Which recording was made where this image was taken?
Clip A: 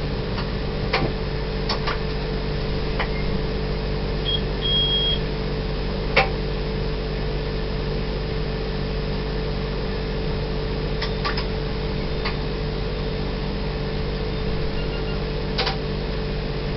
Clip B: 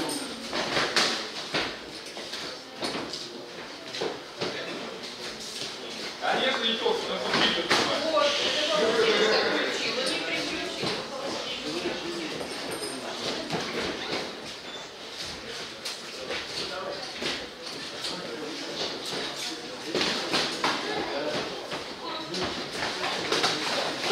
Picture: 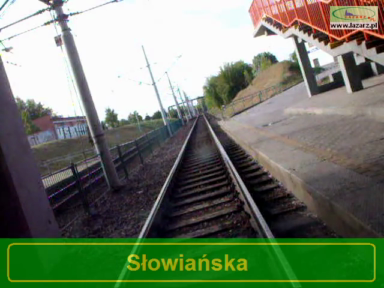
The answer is A